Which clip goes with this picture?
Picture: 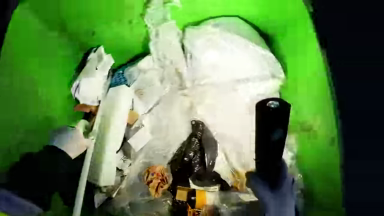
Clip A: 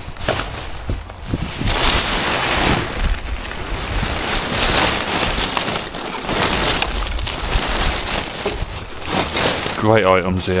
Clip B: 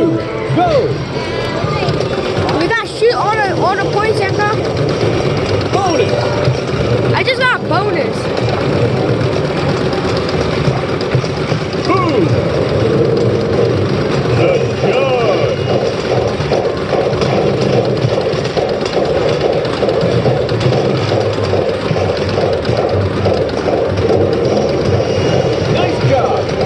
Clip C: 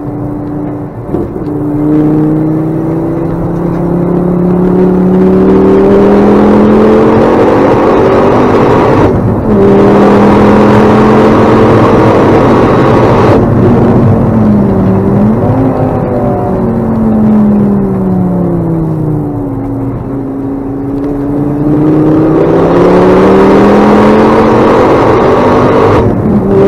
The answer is A